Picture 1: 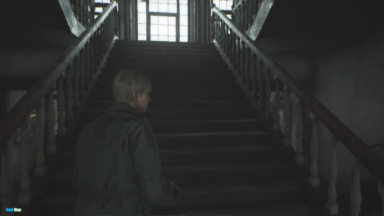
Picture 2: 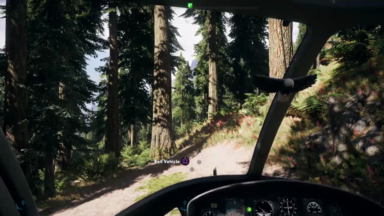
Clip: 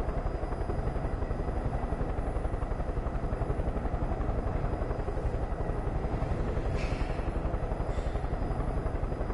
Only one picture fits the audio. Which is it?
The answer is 2